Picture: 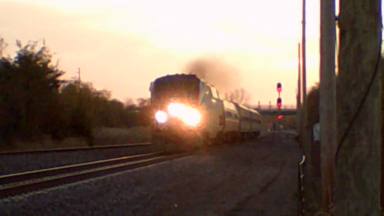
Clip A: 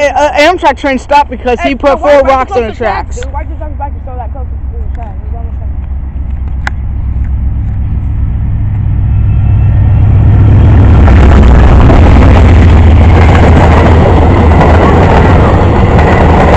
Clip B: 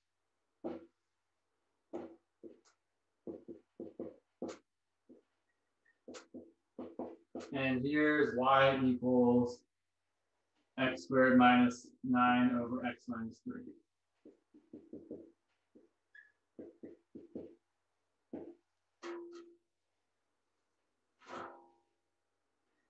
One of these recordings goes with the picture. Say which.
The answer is A